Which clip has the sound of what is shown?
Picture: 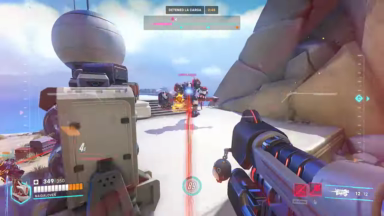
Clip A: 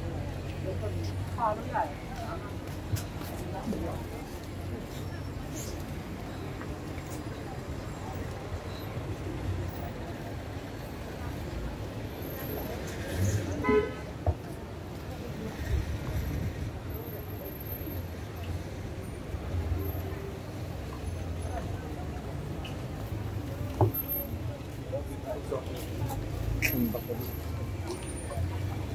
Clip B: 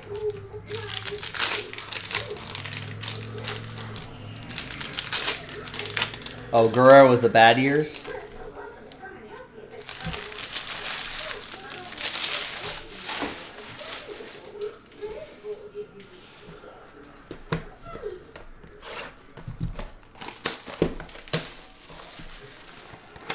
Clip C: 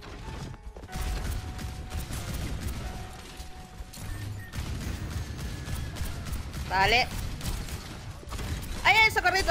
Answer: C